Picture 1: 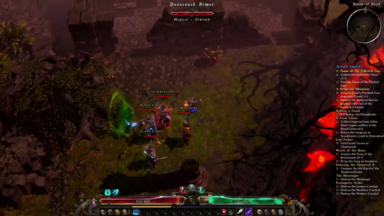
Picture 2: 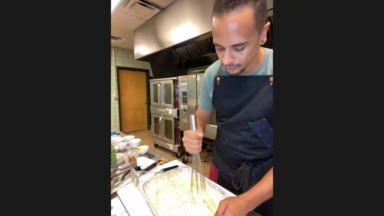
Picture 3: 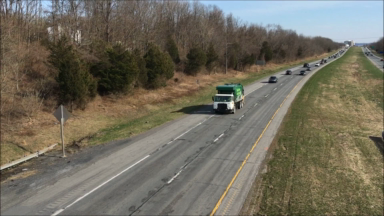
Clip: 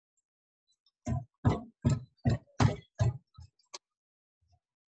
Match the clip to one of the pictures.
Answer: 2